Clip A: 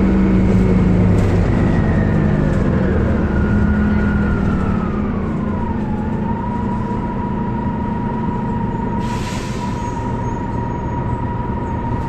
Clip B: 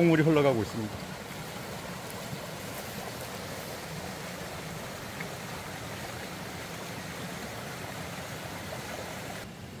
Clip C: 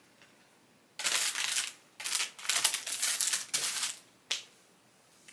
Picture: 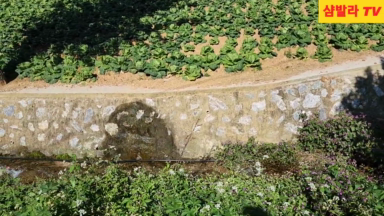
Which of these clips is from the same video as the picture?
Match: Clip B